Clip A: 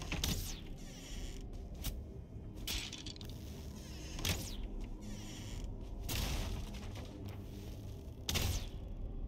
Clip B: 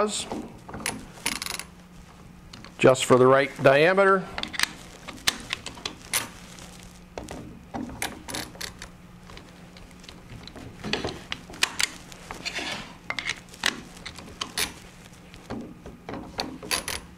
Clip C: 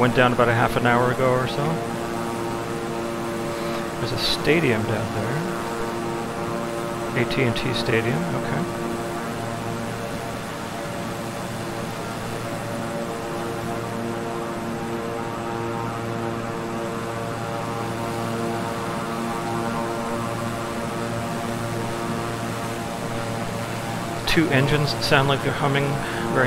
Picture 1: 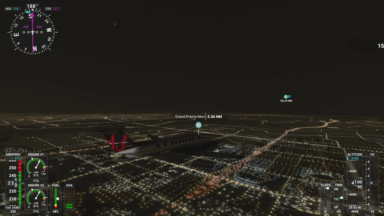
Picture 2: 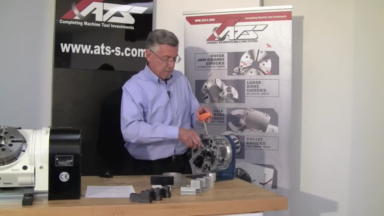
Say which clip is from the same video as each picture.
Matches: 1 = C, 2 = B